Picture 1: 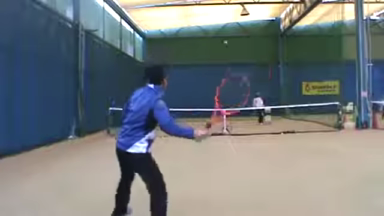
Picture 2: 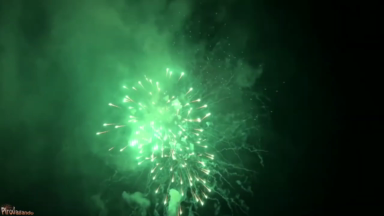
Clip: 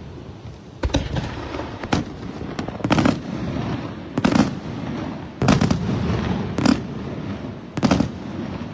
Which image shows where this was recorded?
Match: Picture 2